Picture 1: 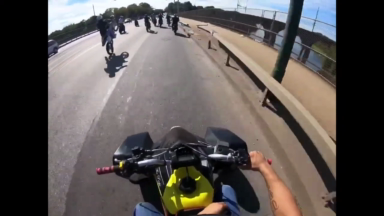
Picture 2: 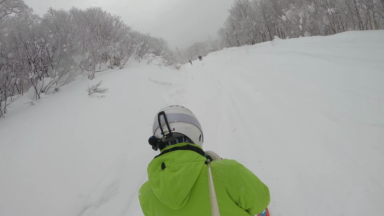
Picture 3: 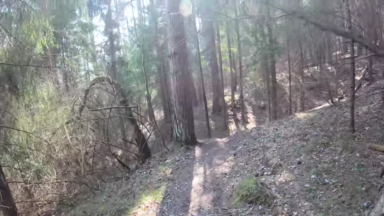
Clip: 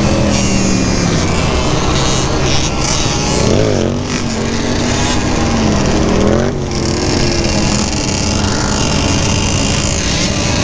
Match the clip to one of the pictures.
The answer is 1